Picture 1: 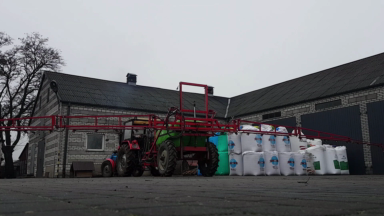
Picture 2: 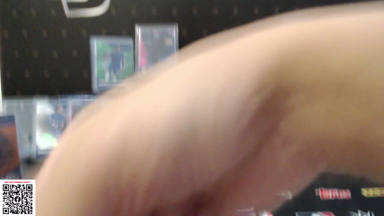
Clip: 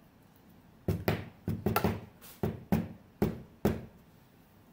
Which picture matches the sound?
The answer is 2